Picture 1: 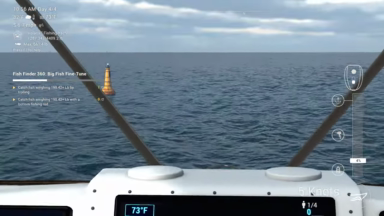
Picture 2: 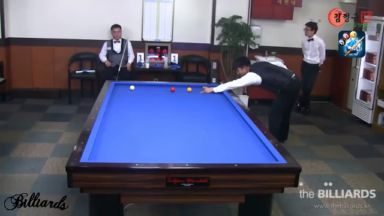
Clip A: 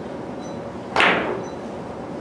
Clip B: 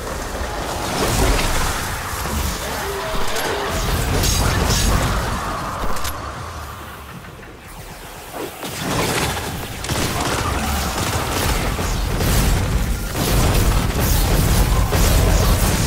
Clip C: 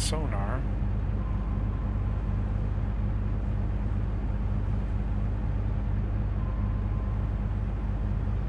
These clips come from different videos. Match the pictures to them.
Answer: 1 C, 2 A